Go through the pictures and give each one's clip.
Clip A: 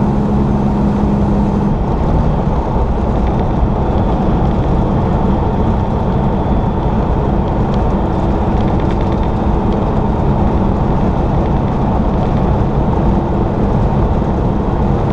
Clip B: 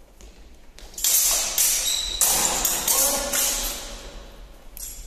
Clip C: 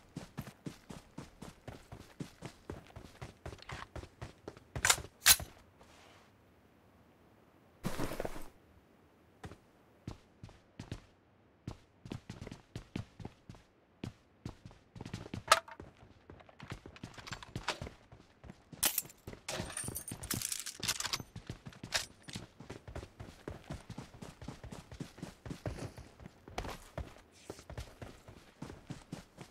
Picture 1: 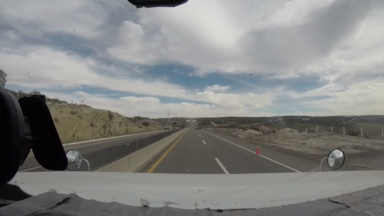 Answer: A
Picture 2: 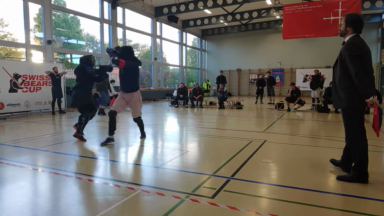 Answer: B